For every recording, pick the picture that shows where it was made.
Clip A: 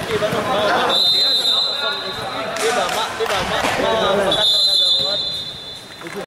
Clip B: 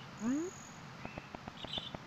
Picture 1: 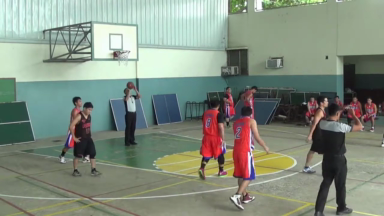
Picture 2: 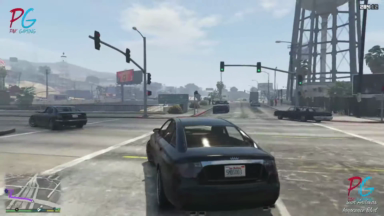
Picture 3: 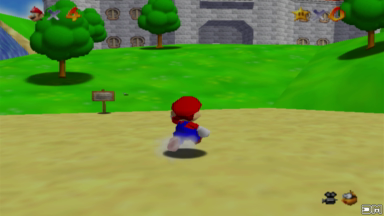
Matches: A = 1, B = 3